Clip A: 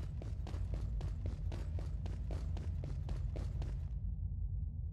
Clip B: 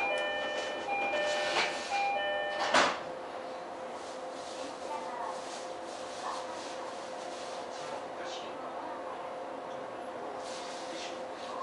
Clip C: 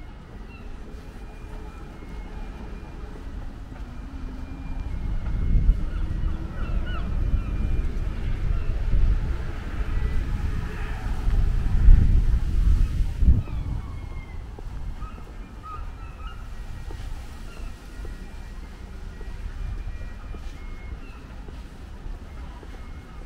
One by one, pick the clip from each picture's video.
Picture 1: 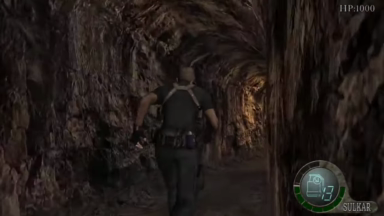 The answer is A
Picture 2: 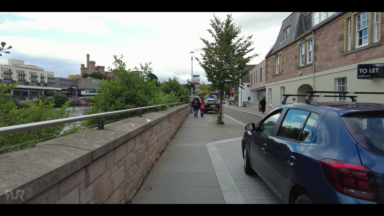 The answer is C